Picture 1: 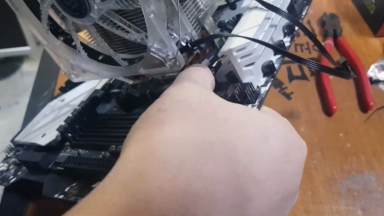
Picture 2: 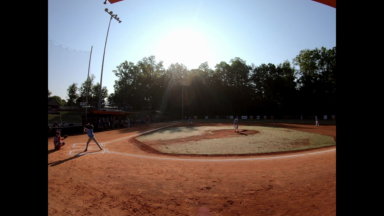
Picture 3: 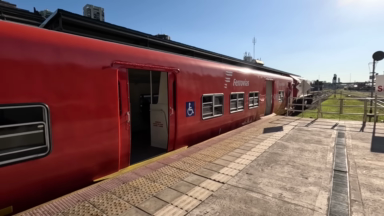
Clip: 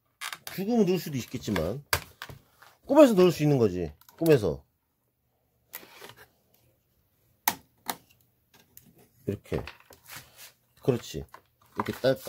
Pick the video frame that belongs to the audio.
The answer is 1